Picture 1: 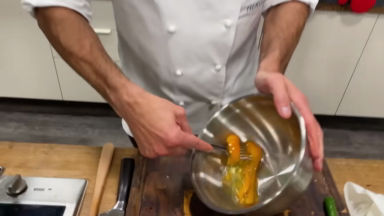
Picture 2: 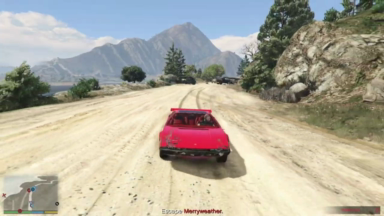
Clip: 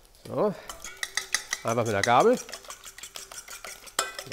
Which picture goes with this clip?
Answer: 1